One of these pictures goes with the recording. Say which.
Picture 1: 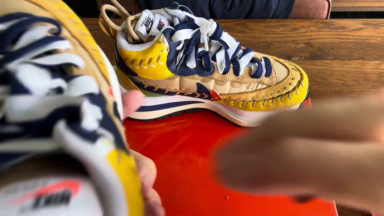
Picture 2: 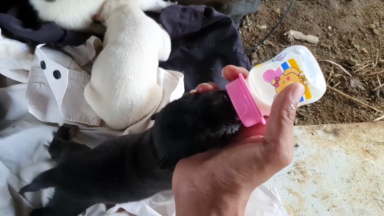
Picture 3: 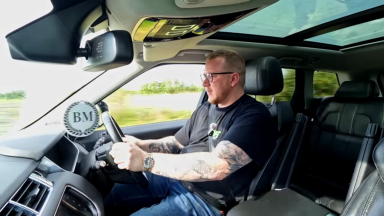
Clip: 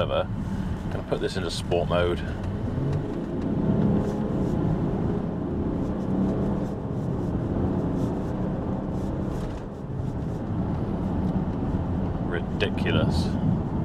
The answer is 3